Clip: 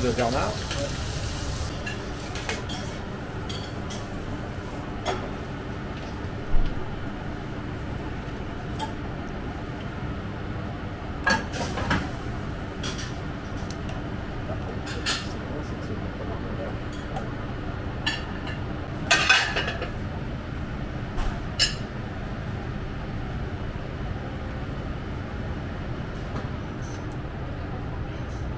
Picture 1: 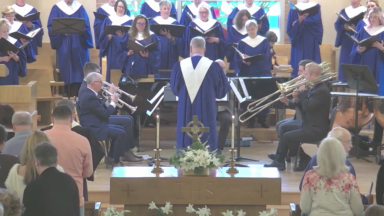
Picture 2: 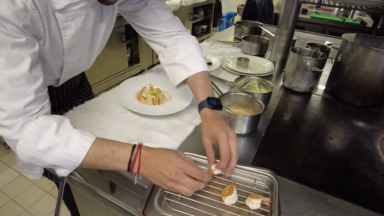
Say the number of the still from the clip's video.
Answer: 2